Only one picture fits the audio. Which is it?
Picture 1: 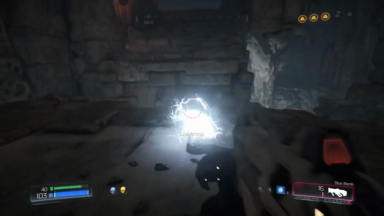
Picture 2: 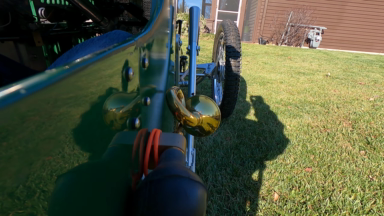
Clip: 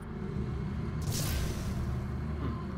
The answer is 1